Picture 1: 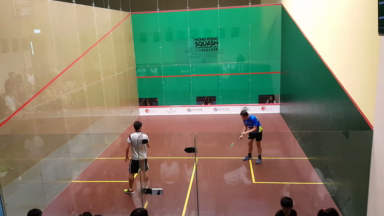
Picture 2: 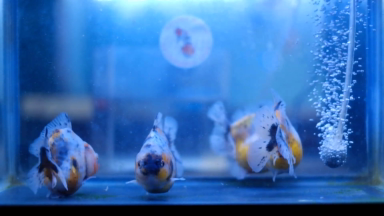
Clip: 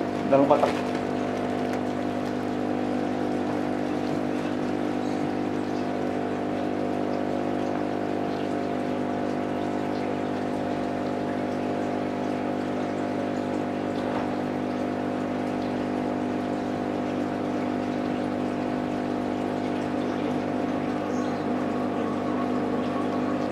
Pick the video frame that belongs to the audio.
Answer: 2